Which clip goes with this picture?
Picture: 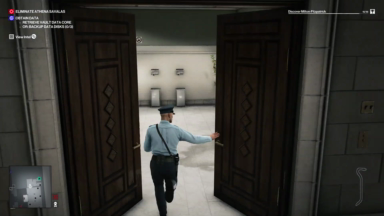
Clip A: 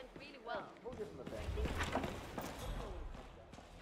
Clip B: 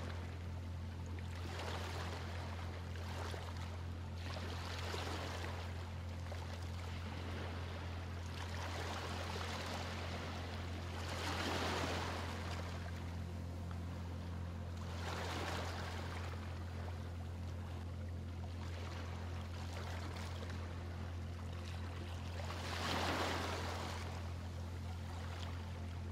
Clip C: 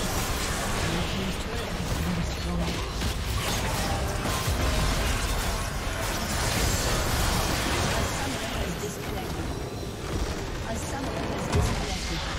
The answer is A